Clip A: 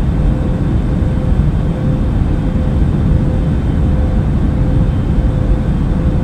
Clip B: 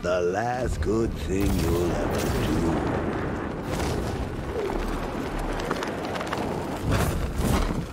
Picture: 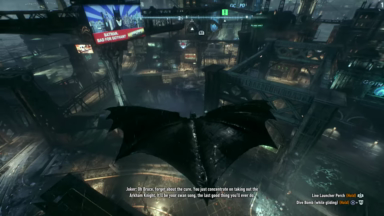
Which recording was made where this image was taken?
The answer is B